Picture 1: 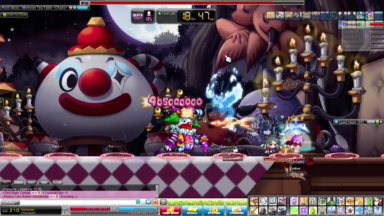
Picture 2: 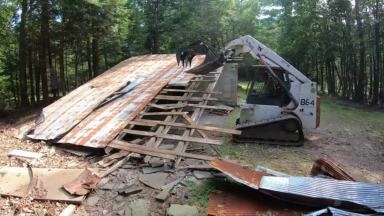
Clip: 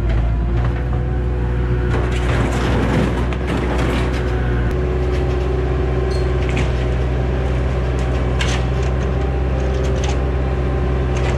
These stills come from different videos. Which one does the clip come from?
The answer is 2